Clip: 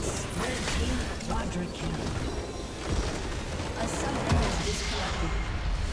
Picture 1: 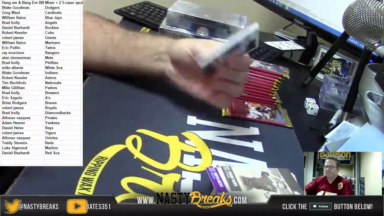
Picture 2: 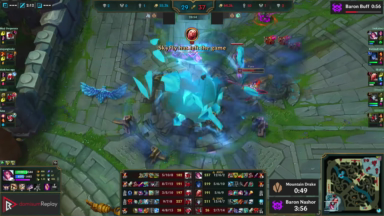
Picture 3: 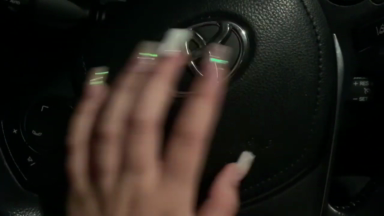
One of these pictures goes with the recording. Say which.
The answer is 2